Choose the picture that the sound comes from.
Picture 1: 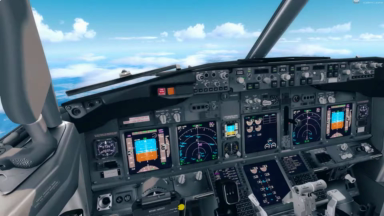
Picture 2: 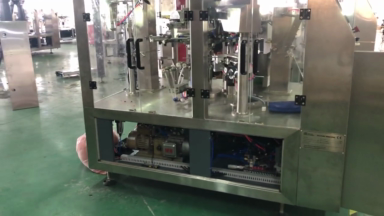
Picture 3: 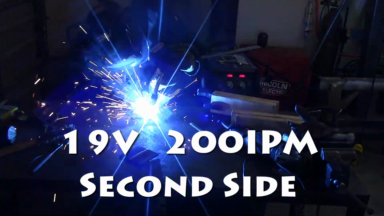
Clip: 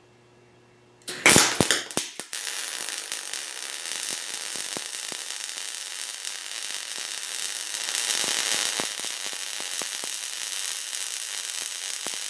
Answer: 3